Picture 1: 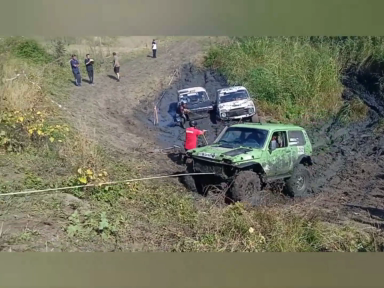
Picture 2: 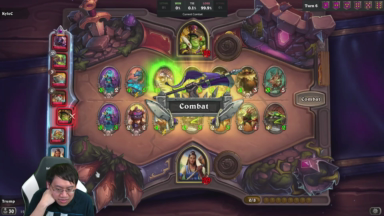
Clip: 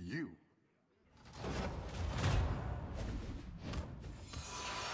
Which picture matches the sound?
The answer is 2